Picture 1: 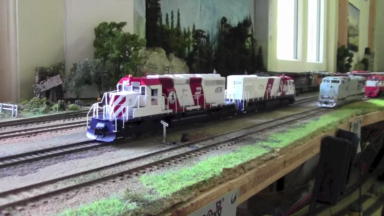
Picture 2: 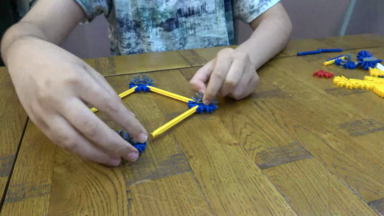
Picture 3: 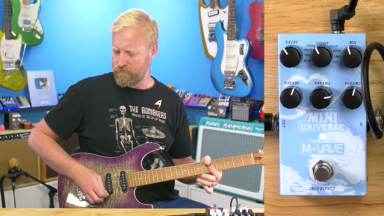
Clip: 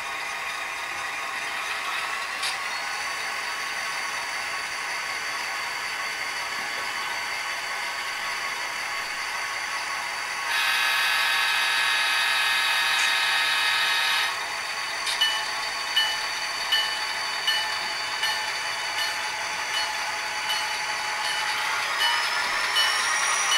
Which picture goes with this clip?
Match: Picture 1